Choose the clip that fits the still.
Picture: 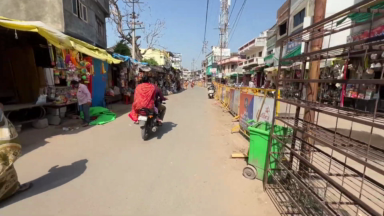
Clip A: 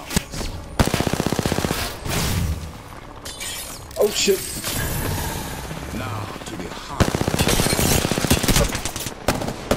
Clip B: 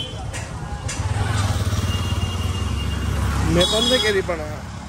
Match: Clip B